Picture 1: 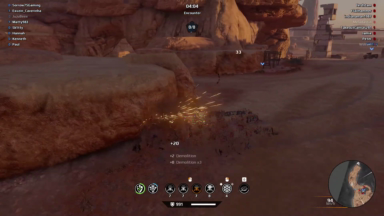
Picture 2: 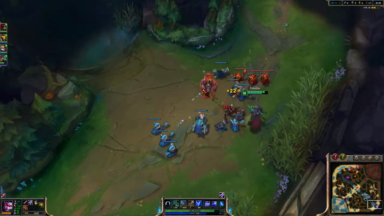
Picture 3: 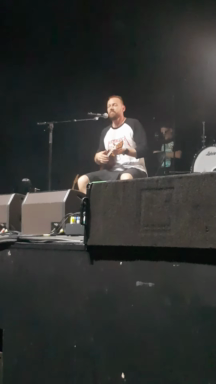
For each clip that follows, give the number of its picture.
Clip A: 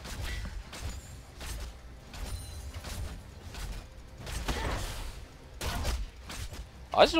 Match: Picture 2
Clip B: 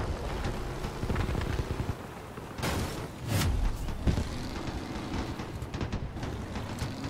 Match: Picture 1